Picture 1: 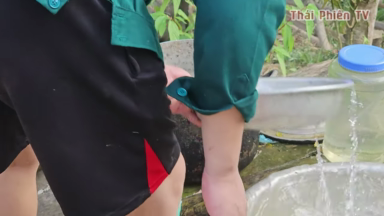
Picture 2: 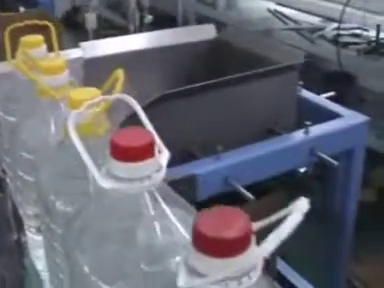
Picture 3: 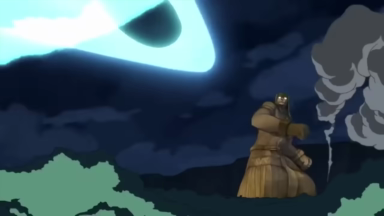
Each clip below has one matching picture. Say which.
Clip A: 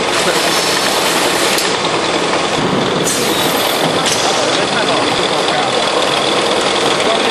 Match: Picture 2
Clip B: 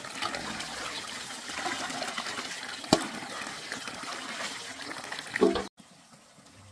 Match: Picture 1